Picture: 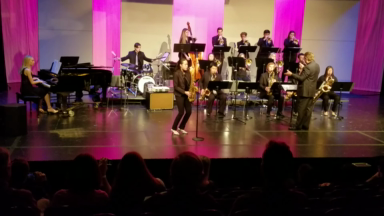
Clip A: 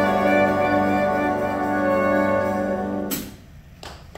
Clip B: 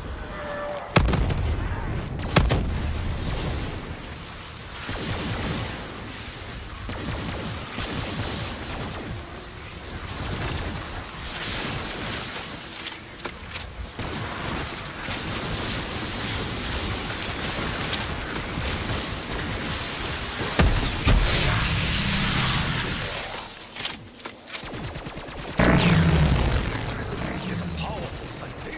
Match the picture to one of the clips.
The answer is A